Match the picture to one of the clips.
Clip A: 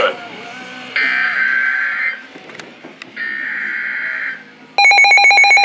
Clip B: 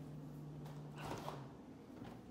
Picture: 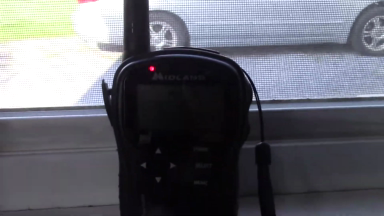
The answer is A